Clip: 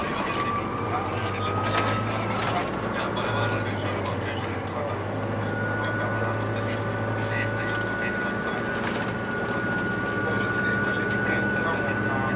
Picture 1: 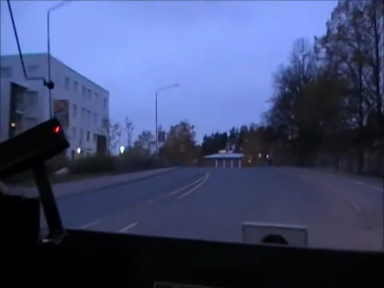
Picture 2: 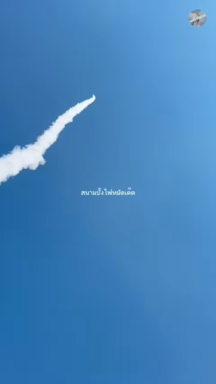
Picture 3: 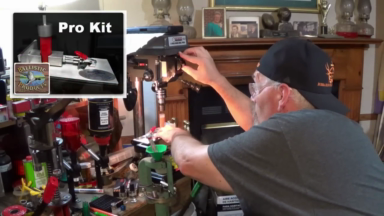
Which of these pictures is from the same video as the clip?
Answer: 1